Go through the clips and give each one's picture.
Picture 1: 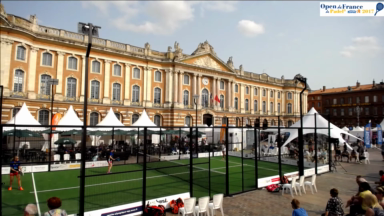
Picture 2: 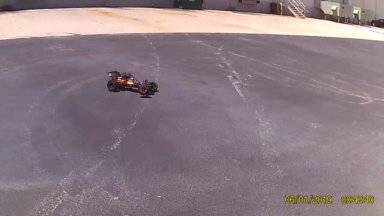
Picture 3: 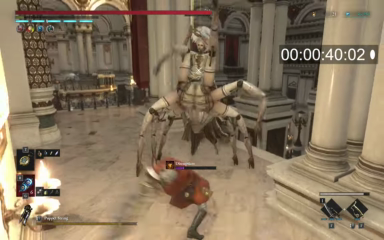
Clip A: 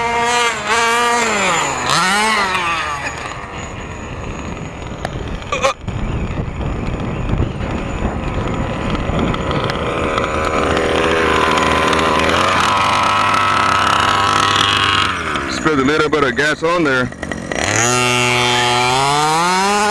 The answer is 2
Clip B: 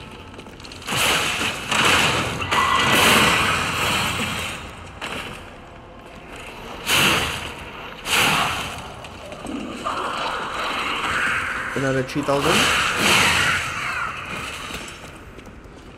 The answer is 3